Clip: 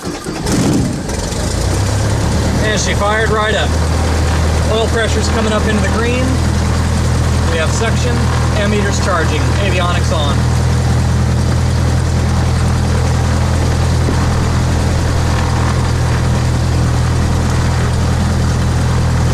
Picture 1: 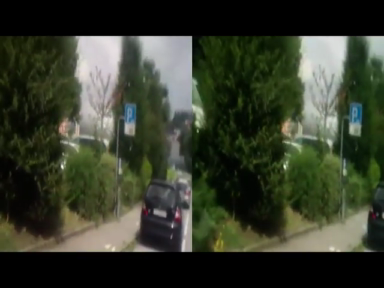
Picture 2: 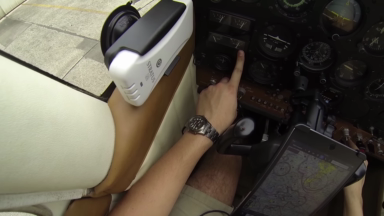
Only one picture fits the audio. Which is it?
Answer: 2